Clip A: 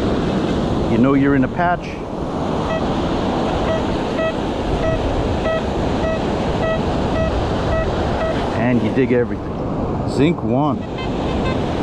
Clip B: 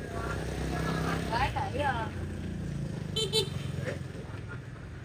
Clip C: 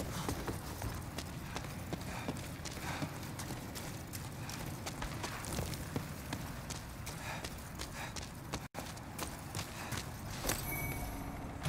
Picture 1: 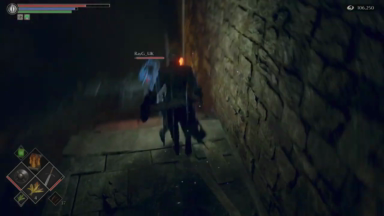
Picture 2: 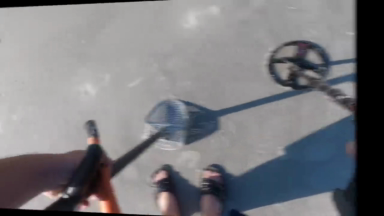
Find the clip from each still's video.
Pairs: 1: C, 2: A